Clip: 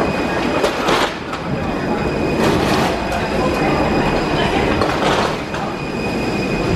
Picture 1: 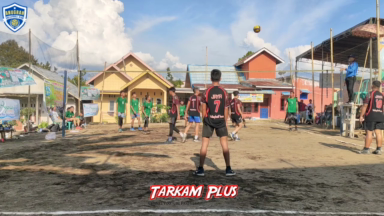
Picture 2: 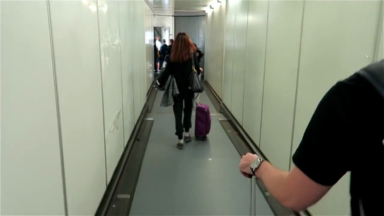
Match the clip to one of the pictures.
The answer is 2